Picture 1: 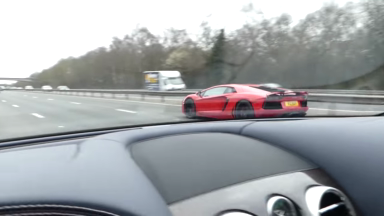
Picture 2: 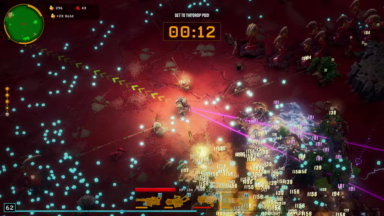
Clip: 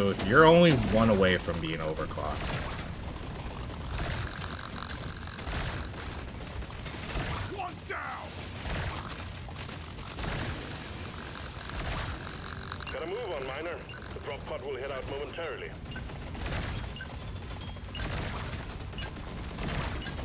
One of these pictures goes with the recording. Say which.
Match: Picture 2